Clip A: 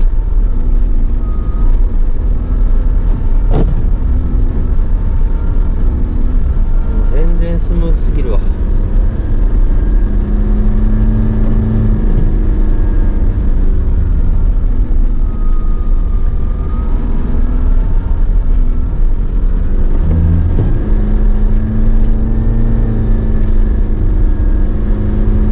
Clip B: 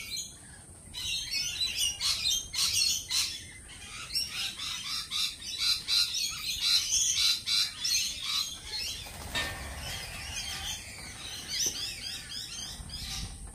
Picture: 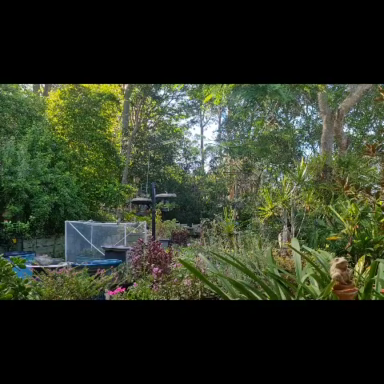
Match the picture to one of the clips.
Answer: B